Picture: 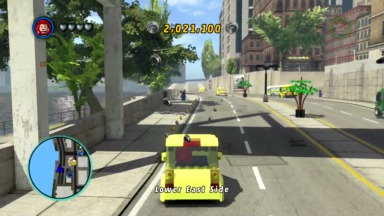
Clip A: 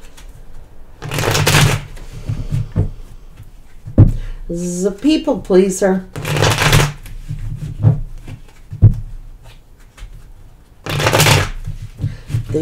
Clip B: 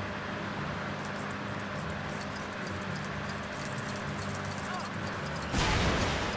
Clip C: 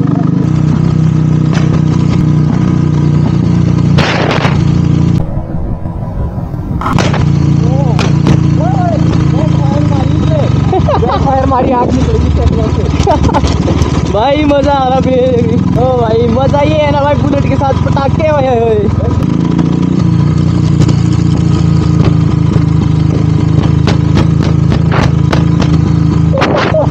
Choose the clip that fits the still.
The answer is B